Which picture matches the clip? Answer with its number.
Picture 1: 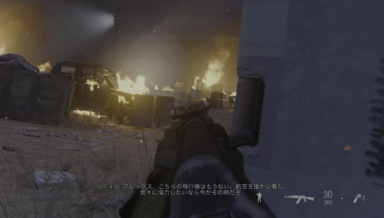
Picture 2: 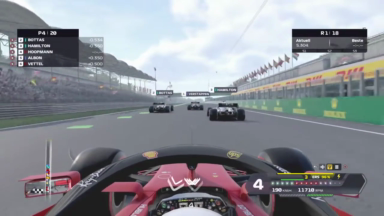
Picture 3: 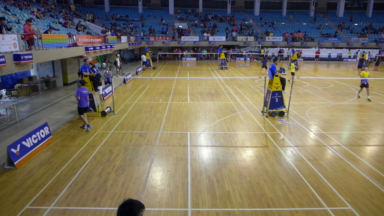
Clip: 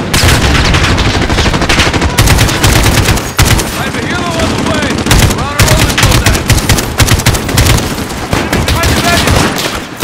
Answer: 1